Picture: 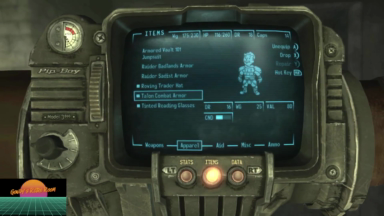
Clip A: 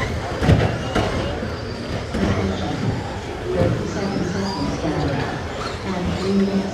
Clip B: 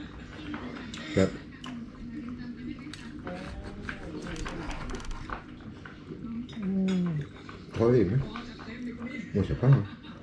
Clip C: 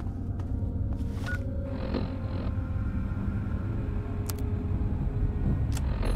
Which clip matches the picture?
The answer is C